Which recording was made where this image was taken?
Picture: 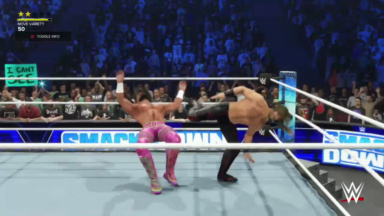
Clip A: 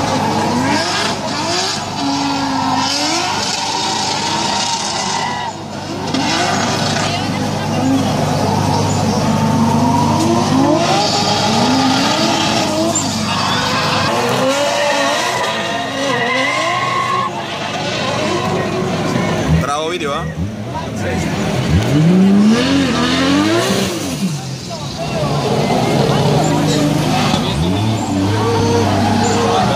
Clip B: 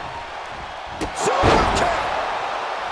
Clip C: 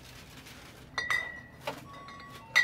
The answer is B